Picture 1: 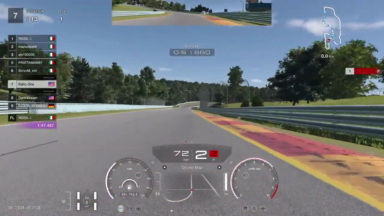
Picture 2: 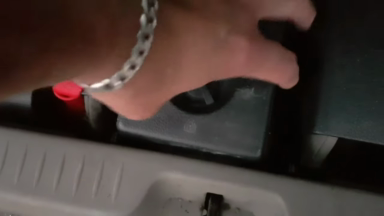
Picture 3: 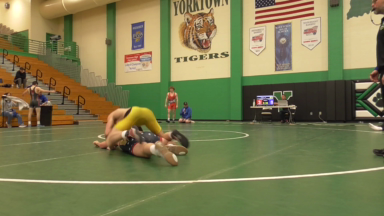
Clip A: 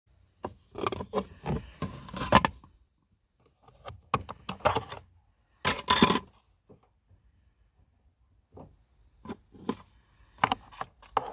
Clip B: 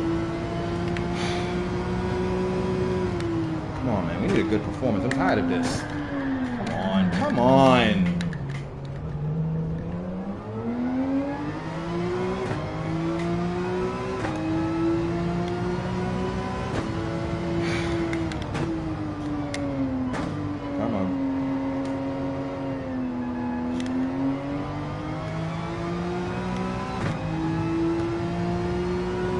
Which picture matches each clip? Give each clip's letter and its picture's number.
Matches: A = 2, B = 1